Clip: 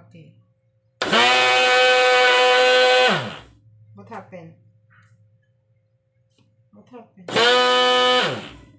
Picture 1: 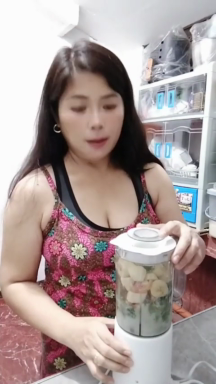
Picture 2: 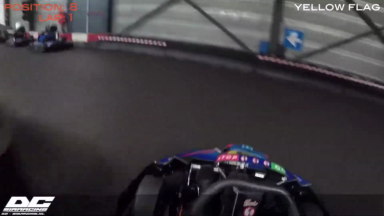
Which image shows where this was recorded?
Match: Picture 1